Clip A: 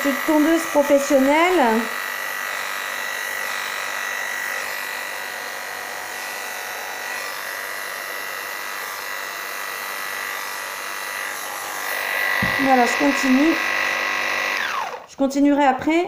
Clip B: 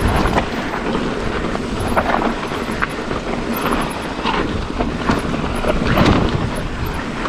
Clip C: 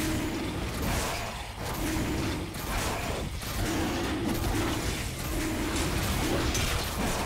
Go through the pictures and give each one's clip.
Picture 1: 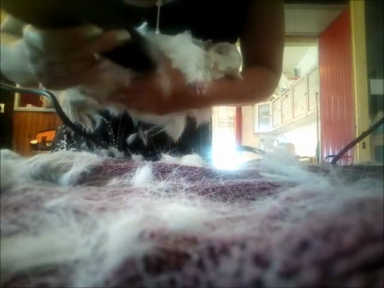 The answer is A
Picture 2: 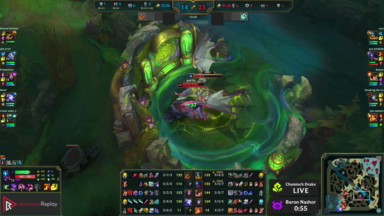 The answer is C